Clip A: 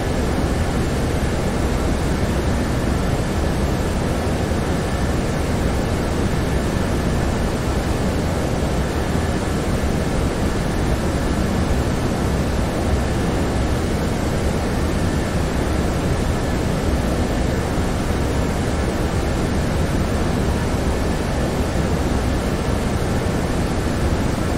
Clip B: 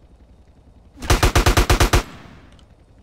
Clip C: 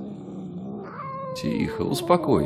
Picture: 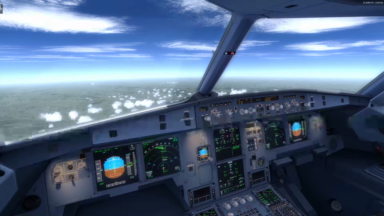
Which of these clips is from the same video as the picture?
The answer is A